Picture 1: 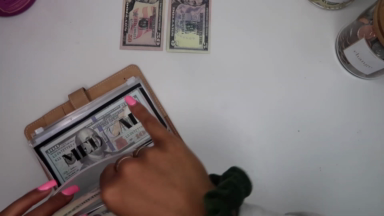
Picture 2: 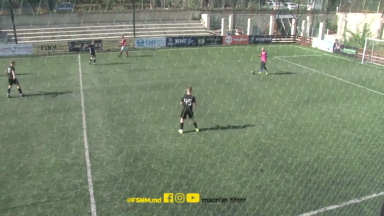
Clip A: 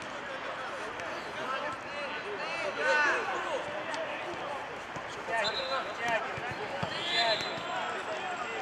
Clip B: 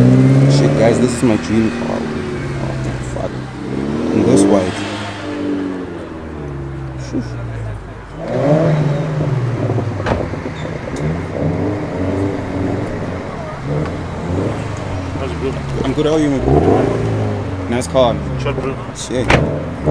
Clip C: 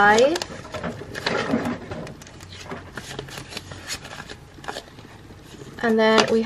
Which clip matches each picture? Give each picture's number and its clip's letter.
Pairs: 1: C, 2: A